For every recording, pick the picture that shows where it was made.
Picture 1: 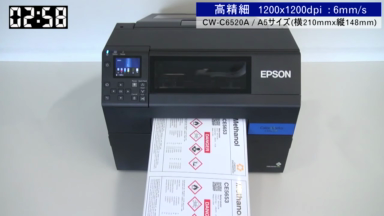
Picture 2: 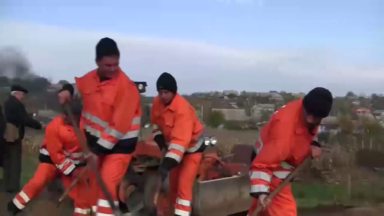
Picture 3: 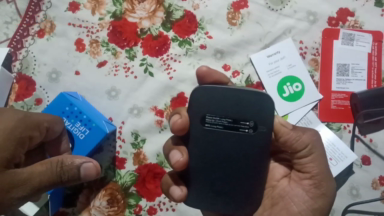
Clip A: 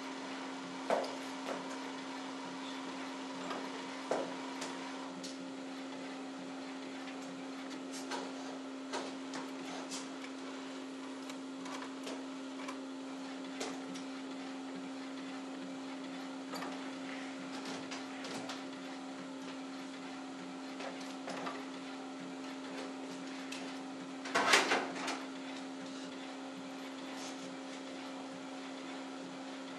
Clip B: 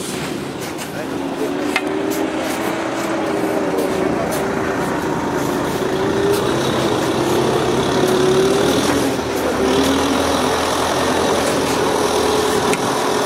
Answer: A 1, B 2